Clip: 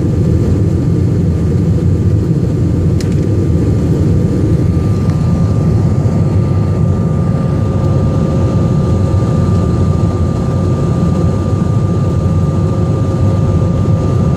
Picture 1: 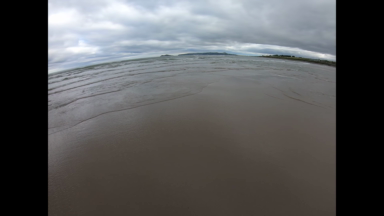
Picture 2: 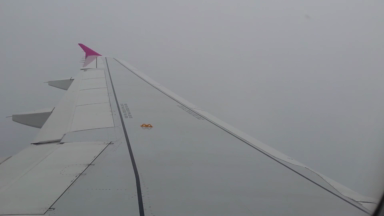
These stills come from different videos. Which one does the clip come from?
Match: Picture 2